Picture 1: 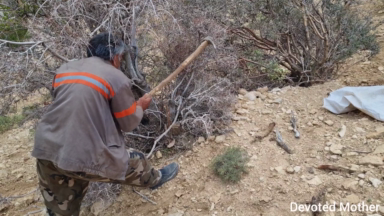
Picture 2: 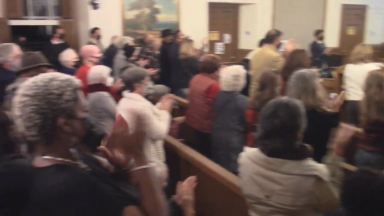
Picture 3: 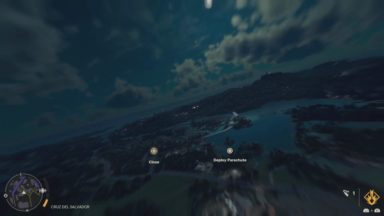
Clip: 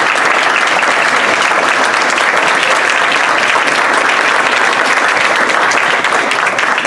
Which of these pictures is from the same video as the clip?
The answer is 2